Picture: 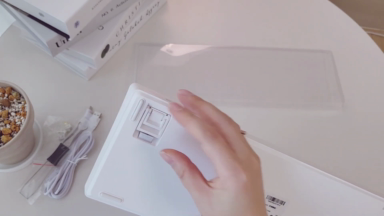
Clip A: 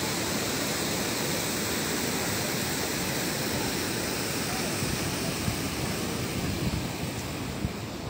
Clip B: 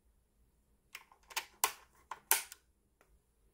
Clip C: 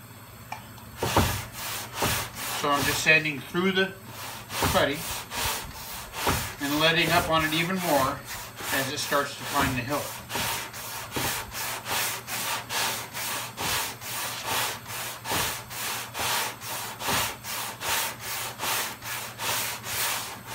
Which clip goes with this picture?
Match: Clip B